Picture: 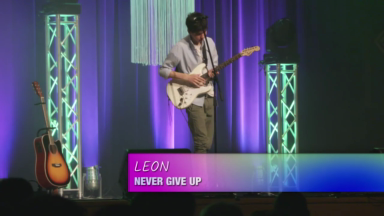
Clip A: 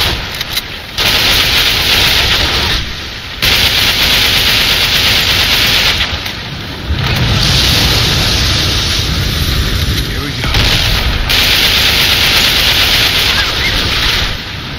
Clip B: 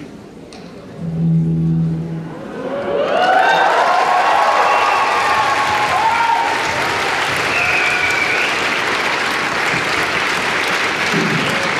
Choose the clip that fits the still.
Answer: B